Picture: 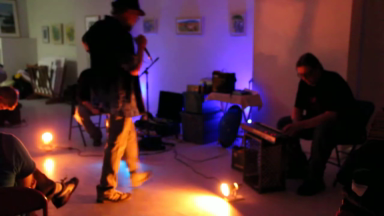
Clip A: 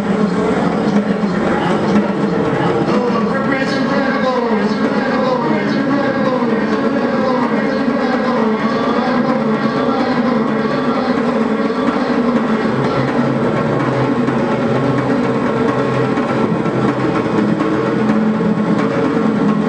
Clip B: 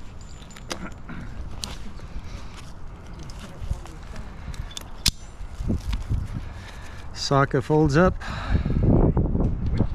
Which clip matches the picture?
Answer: A